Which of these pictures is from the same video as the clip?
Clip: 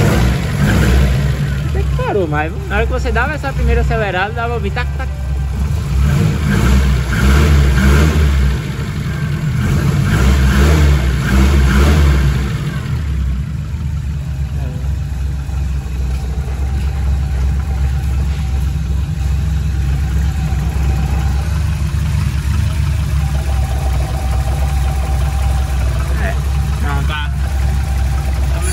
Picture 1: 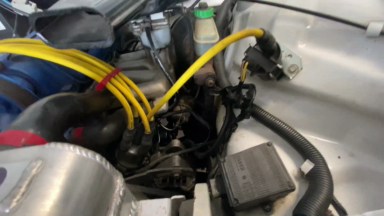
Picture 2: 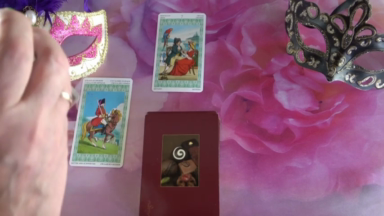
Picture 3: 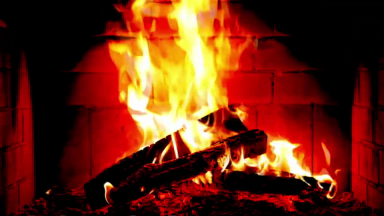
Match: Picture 1